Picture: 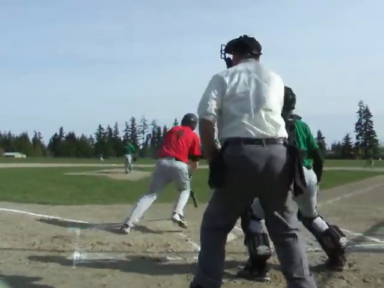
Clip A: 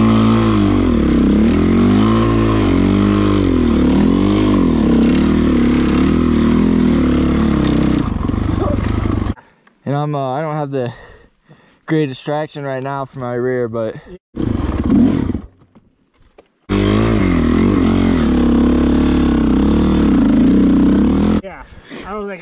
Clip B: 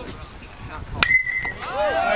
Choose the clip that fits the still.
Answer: B